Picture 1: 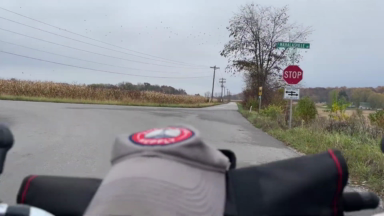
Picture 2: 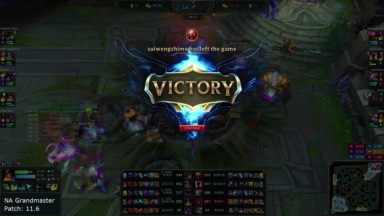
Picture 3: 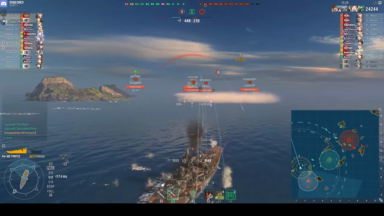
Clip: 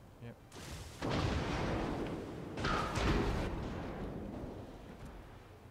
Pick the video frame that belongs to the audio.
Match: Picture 3